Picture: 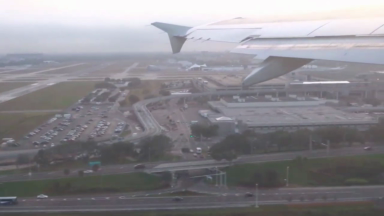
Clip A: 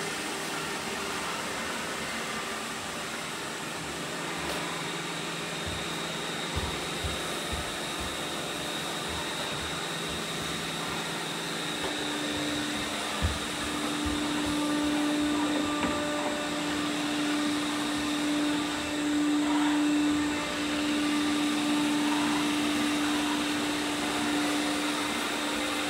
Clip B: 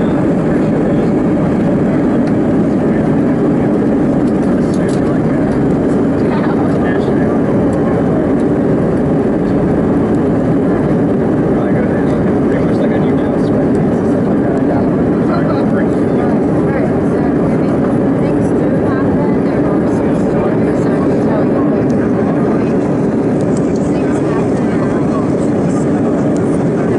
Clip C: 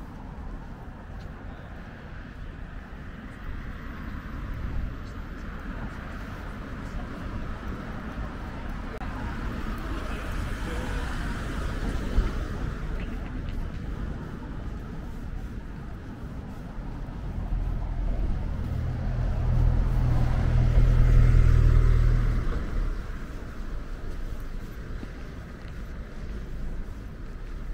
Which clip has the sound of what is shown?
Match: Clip B